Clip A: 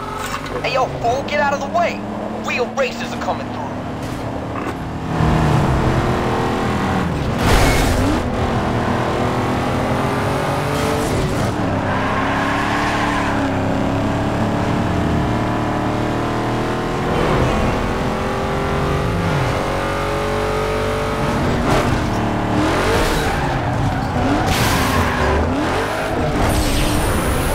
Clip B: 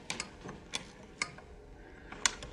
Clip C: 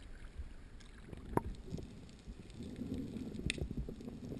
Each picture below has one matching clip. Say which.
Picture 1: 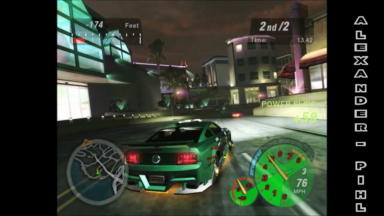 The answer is A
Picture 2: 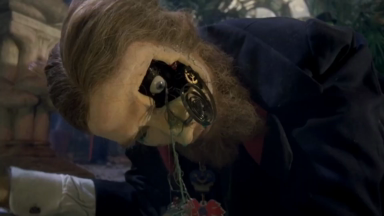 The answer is B